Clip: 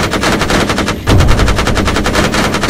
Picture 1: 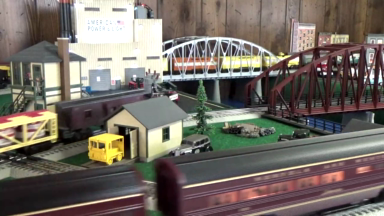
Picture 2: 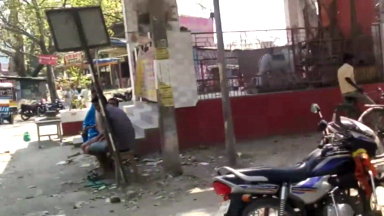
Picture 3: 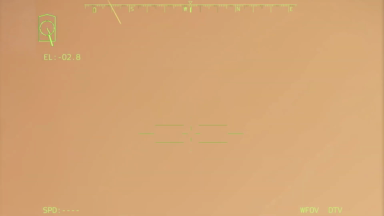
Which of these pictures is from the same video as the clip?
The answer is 3